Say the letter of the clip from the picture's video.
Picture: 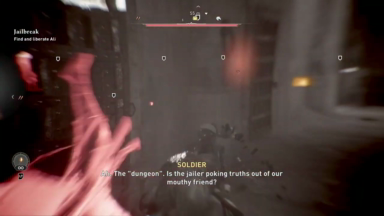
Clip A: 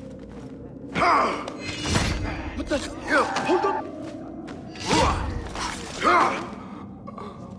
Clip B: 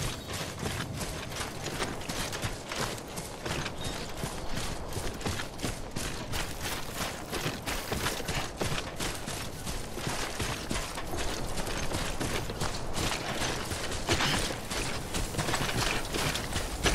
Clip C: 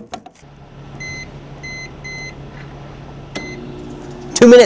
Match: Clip A